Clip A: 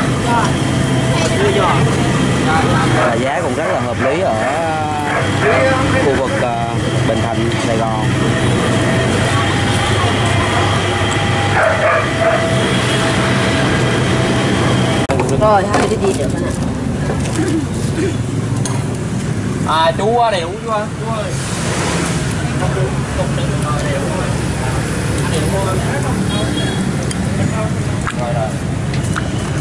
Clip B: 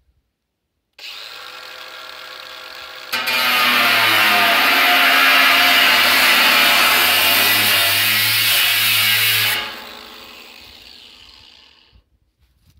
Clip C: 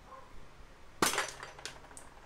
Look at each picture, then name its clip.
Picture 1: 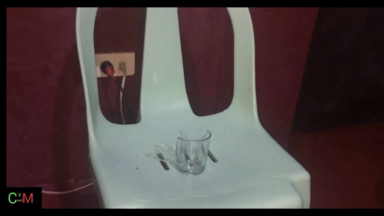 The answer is C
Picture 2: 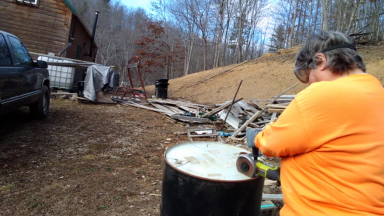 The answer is B